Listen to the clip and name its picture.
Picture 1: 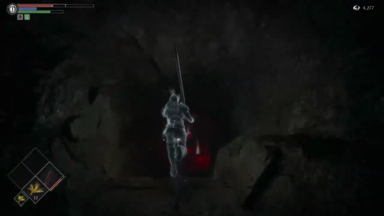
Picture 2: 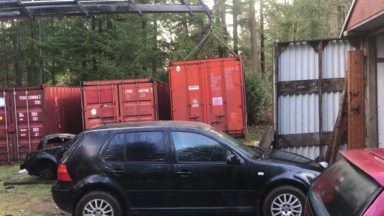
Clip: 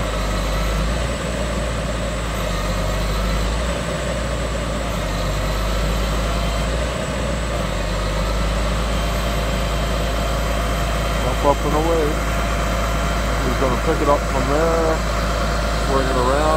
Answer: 2